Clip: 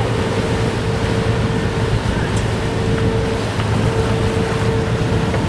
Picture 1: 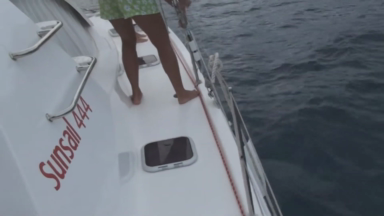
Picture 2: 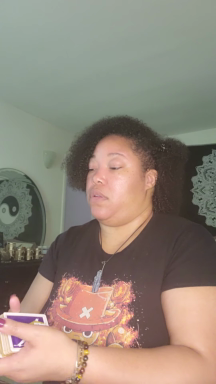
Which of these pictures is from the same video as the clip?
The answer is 1